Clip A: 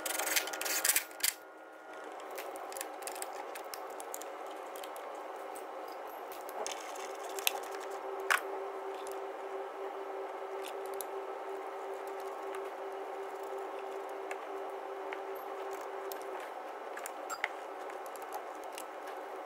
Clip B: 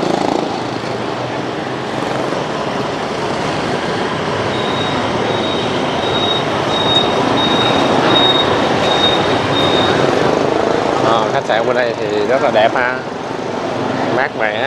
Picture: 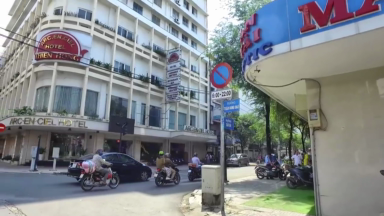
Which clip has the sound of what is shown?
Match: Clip B